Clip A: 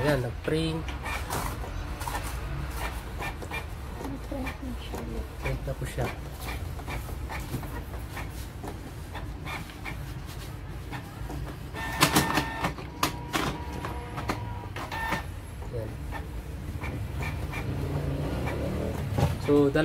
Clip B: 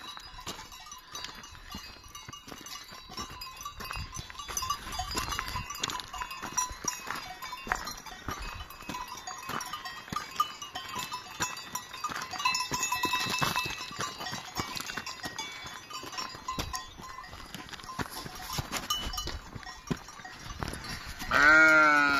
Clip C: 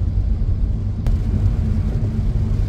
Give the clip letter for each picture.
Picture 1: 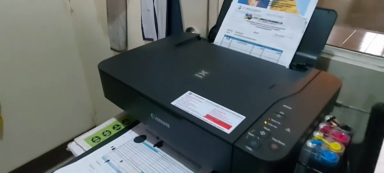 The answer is A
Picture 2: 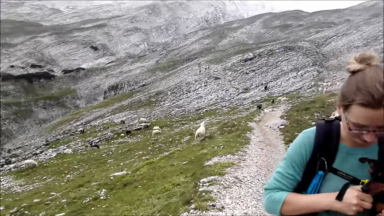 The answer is B